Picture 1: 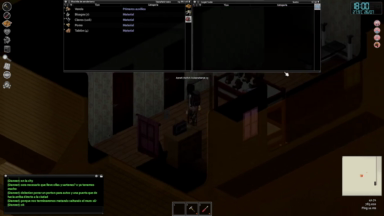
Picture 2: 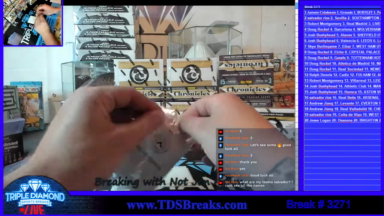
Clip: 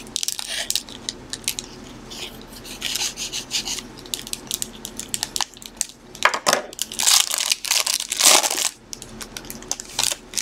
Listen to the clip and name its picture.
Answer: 2